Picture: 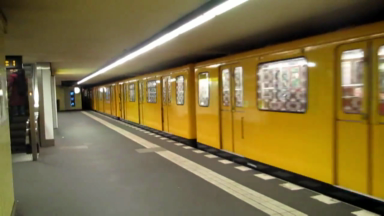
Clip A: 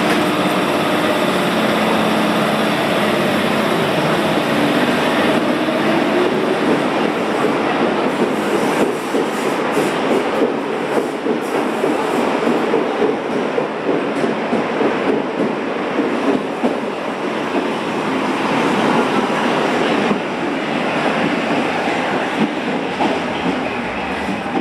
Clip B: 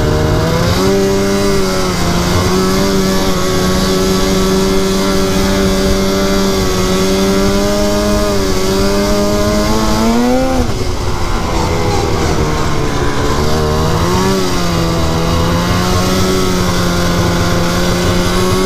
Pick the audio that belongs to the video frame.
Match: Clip A